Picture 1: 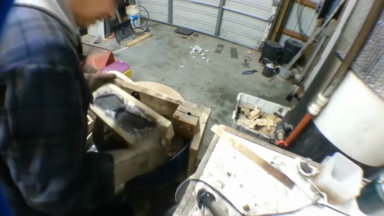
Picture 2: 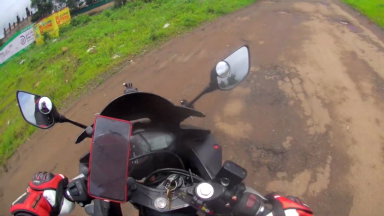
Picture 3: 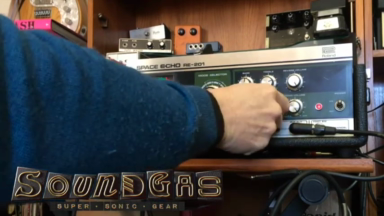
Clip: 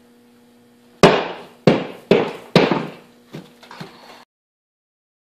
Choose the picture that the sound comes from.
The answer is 1